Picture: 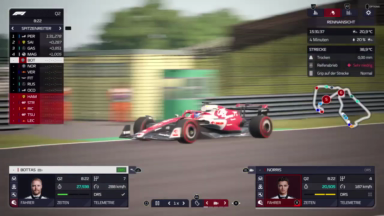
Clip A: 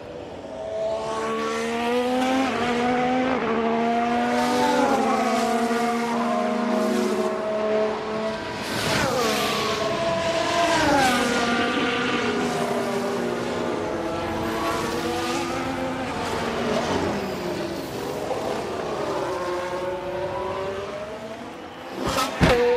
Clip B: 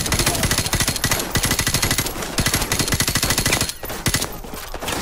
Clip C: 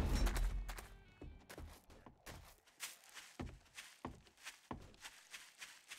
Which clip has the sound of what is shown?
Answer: A